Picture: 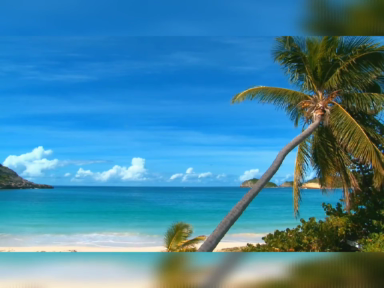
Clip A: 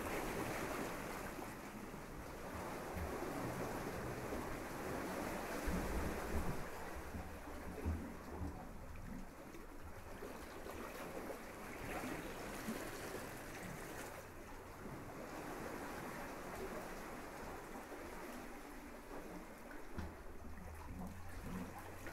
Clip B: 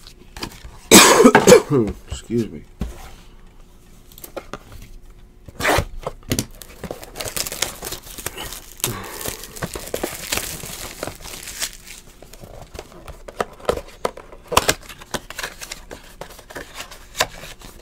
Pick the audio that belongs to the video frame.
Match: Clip A